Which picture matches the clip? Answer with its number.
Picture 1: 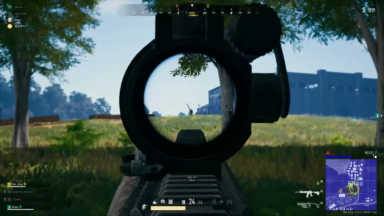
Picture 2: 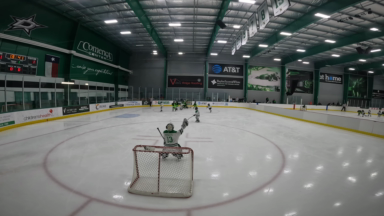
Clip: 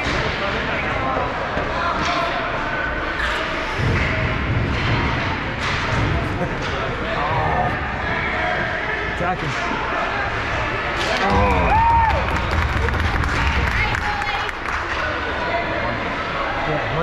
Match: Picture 2